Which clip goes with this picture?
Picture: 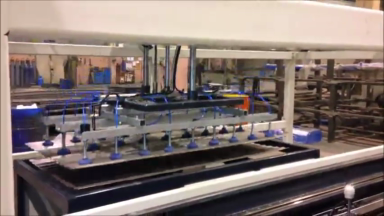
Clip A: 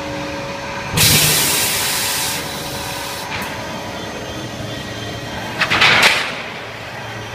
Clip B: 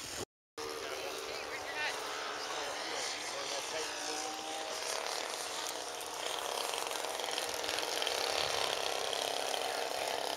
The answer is A